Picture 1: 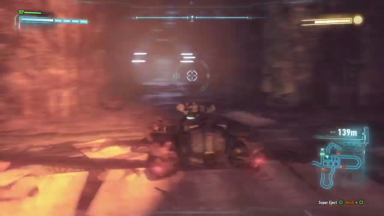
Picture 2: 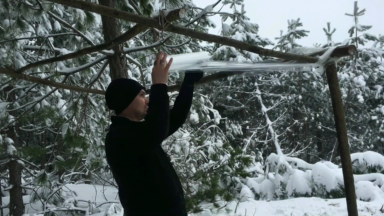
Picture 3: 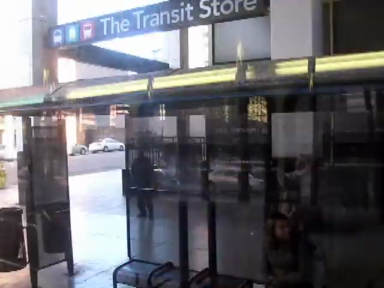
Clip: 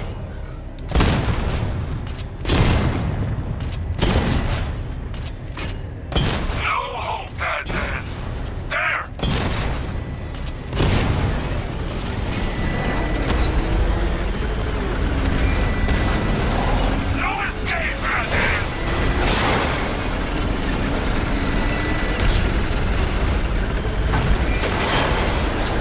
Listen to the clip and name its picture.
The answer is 1